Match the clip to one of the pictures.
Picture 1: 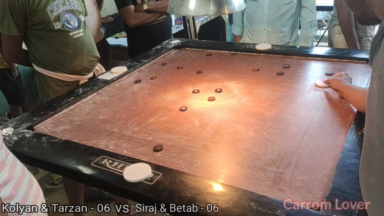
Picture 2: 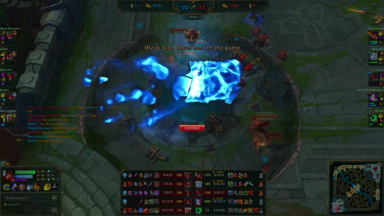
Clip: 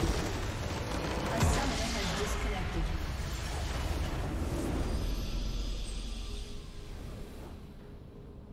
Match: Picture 2